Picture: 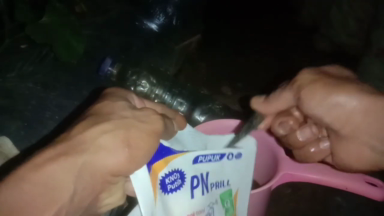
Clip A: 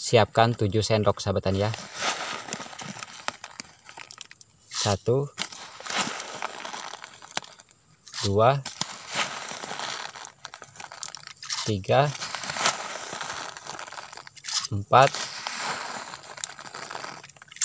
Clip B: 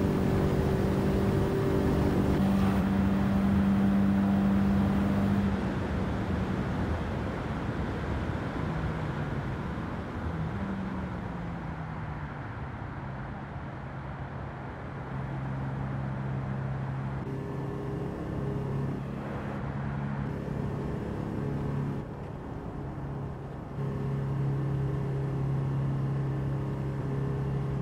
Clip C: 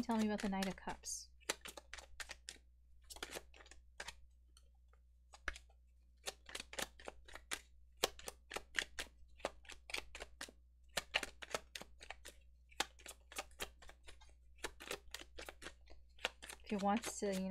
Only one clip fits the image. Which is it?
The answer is A